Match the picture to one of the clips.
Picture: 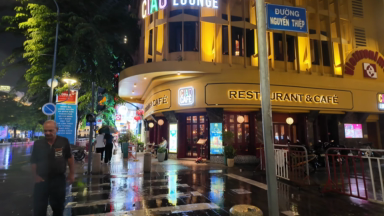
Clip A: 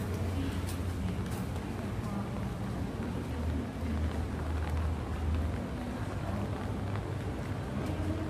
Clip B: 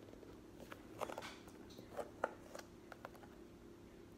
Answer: A